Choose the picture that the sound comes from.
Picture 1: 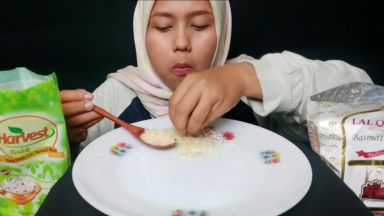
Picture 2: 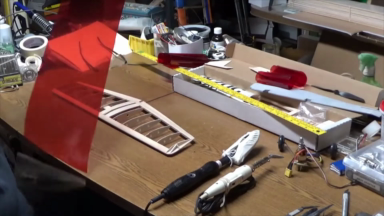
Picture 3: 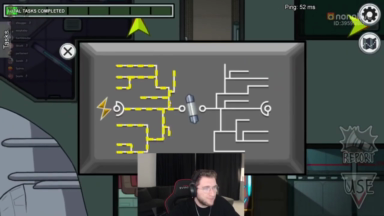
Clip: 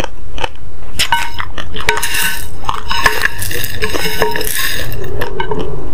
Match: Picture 1